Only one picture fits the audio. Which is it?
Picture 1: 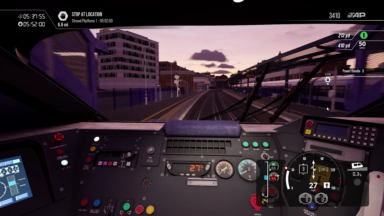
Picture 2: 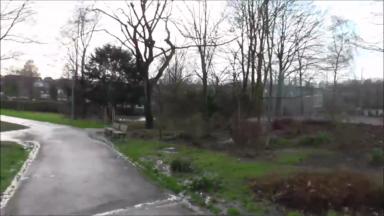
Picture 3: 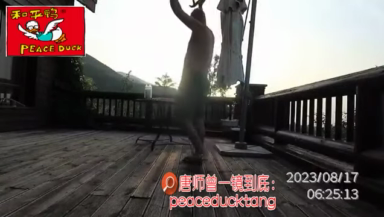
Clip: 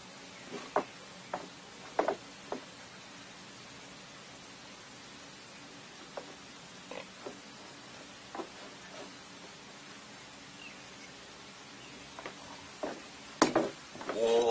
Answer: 3